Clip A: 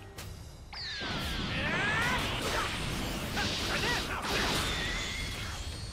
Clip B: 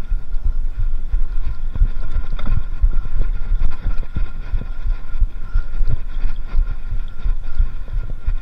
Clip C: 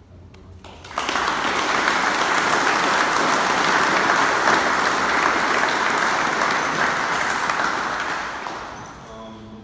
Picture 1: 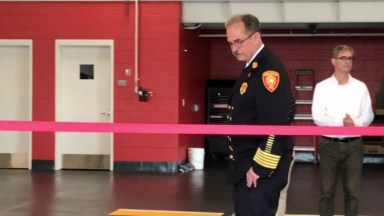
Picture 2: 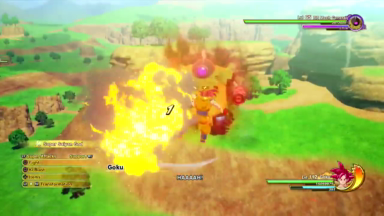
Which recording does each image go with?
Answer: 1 C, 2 A